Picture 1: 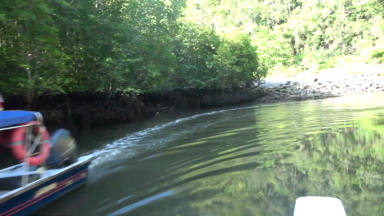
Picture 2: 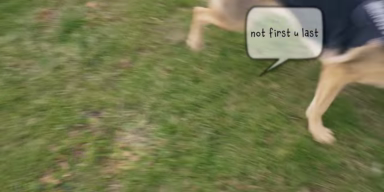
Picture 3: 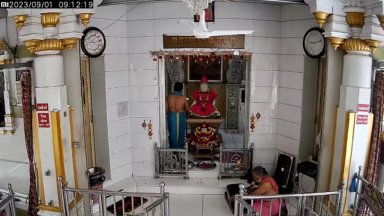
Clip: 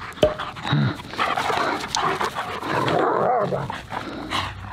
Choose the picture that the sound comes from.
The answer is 2